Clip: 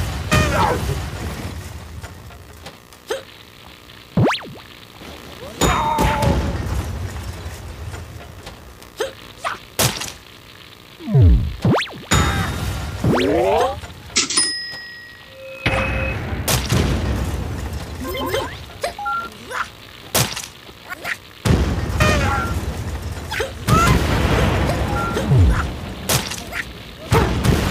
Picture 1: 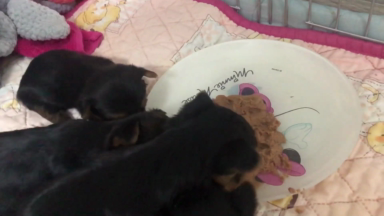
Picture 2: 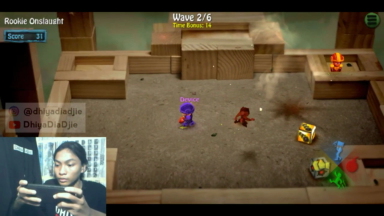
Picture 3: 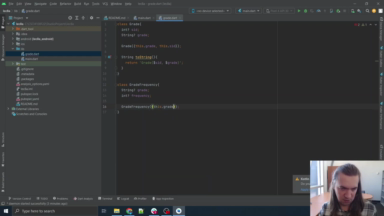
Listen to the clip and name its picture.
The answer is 2